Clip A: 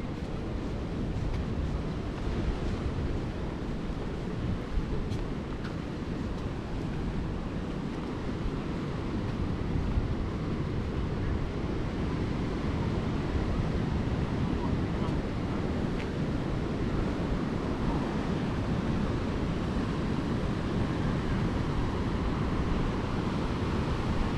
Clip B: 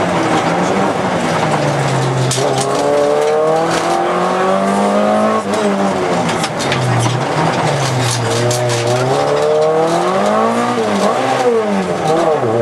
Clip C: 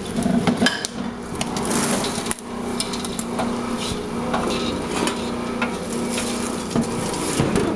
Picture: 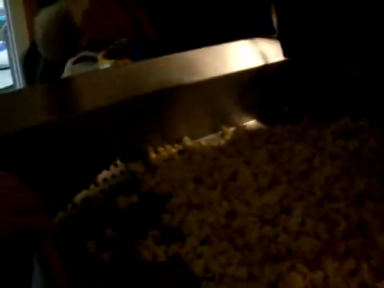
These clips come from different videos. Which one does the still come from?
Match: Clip C